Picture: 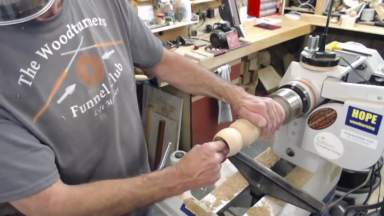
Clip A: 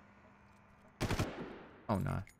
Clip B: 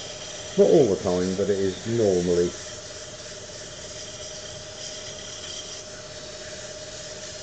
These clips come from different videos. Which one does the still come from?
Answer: B